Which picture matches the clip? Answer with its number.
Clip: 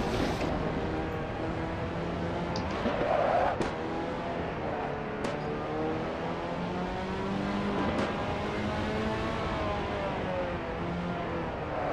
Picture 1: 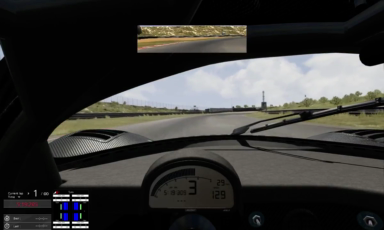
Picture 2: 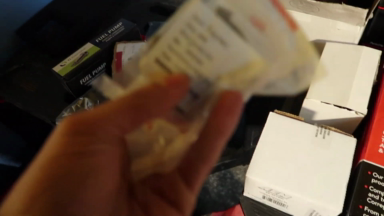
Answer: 1